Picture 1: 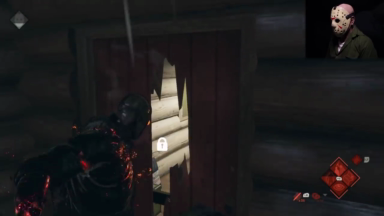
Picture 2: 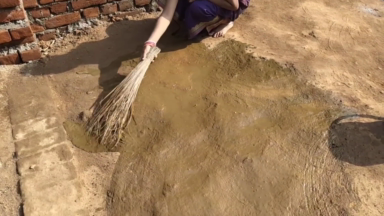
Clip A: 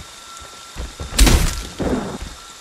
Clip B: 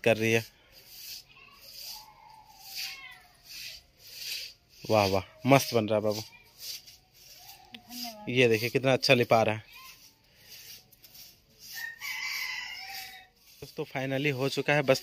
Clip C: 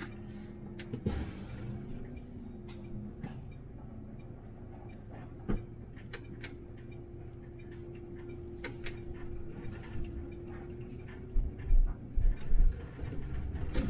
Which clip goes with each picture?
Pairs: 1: A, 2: B